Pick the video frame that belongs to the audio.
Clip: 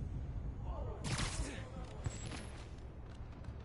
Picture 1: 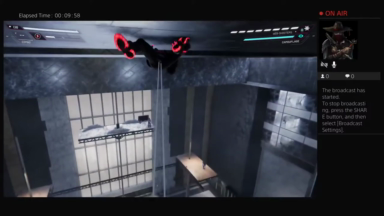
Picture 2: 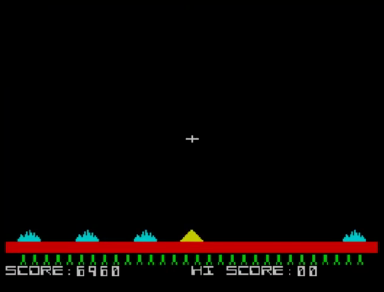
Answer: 1